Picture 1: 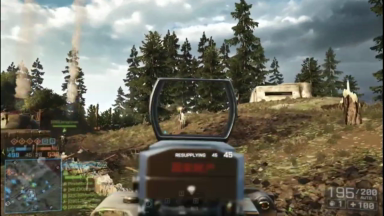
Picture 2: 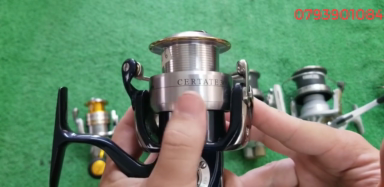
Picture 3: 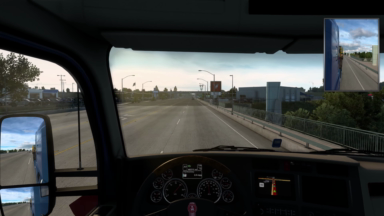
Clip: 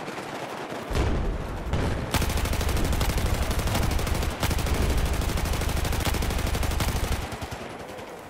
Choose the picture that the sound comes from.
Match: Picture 1